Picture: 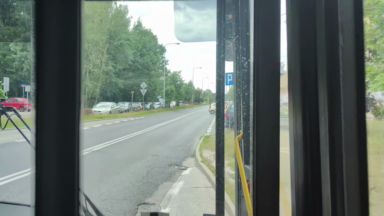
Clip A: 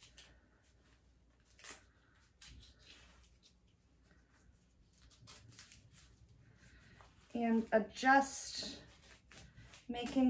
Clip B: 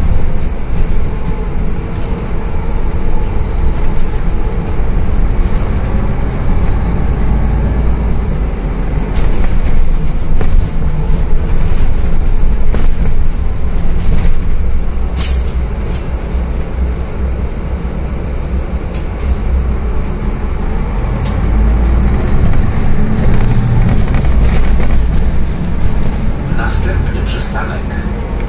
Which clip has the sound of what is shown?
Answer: B